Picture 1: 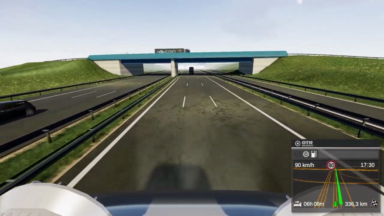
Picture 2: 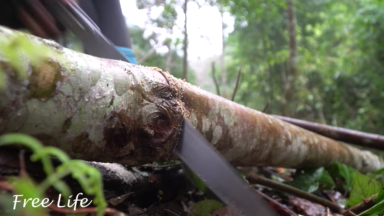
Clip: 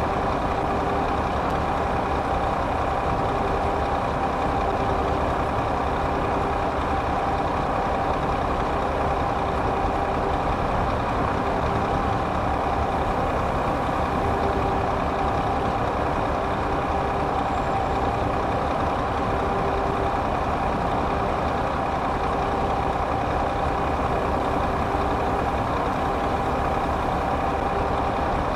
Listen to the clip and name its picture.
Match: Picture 1